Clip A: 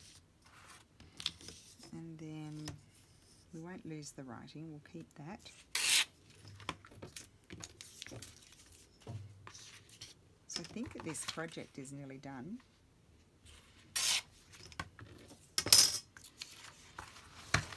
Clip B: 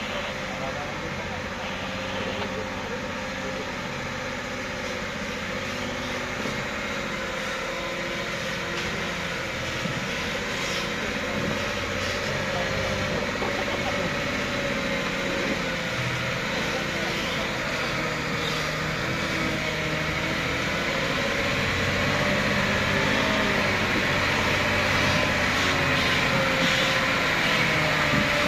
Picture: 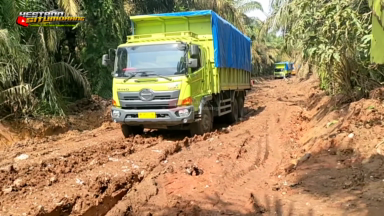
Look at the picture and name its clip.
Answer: B